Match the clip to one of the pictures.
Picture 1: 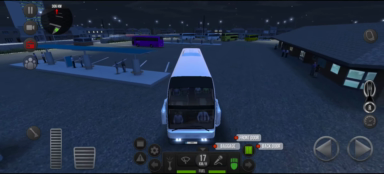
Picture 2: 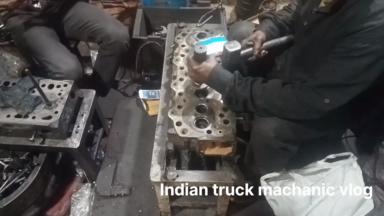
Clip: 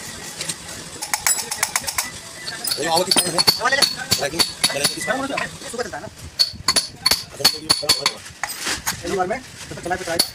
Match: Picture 2